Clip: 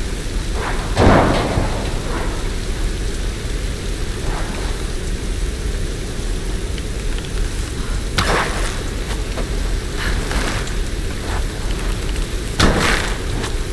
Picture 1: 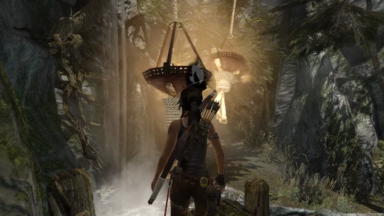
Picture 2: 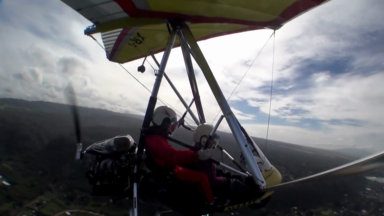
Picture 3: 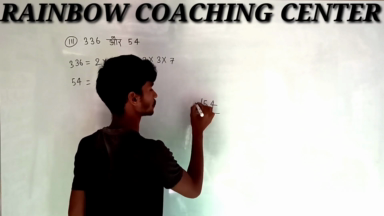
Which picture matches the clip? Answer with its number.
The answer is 1